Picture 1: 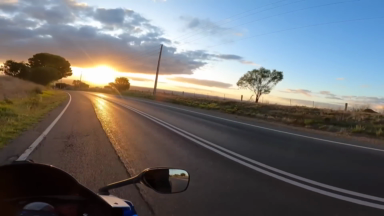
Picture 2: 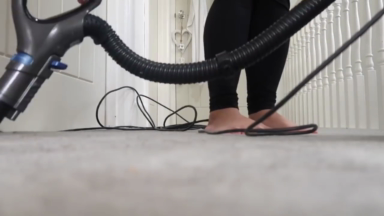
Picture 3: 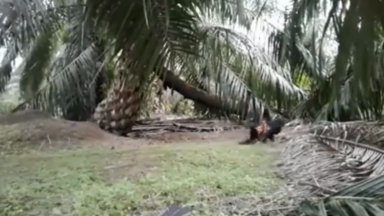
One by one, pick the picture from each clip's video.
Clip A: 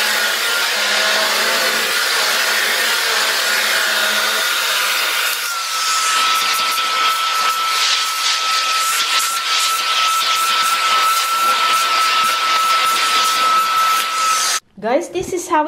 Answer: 2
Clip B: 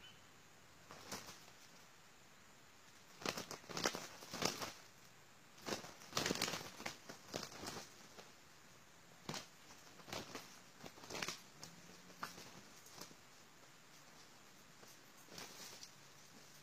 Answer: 3